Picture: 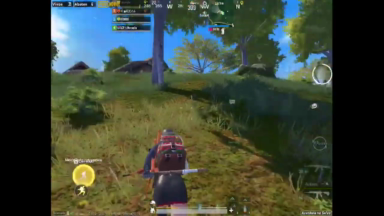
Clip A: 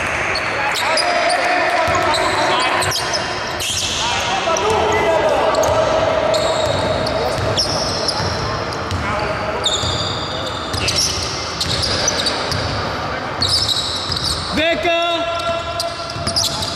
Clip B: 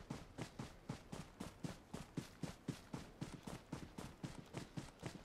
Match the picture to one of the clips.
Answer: B